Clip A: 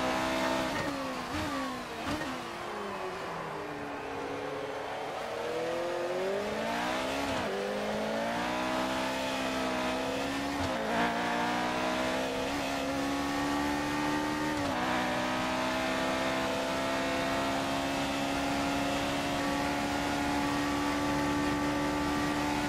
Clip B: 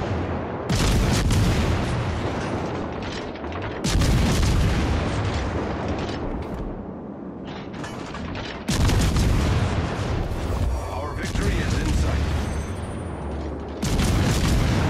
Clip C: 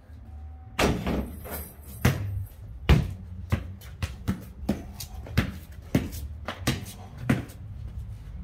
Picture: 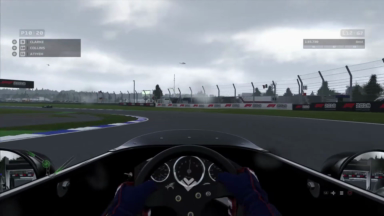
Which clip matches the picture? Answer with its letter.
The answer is A